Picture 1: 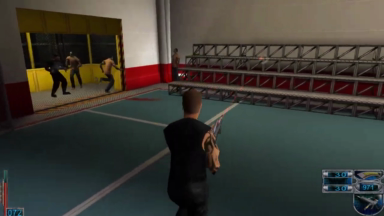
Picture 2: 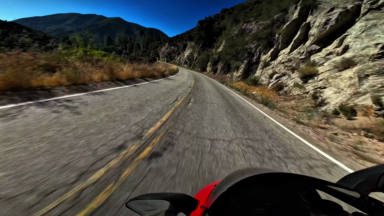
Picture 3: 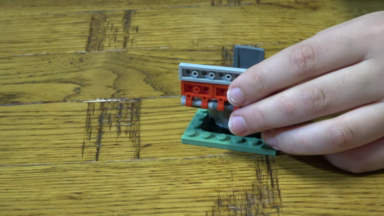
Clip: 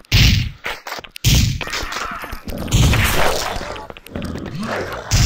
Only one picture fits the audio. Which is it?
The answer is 1